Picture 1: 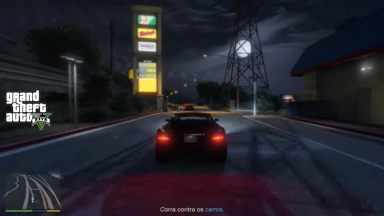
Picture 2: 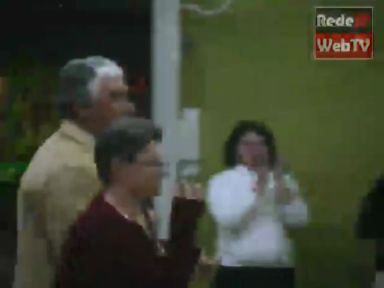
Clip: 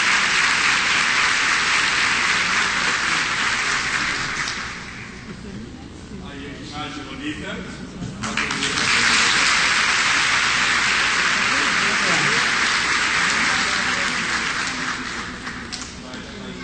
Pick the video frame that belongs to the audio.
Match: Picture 2